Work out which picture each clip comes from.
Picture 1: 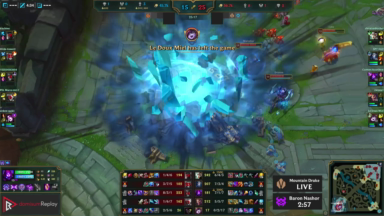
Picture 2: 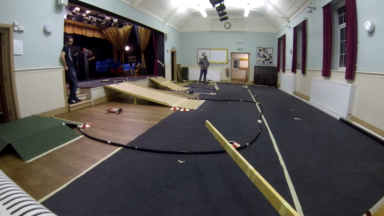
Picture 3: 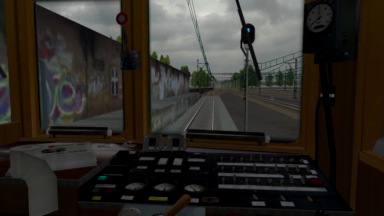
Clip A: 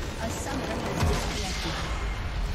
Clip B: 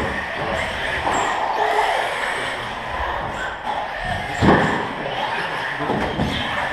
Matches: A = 1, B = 2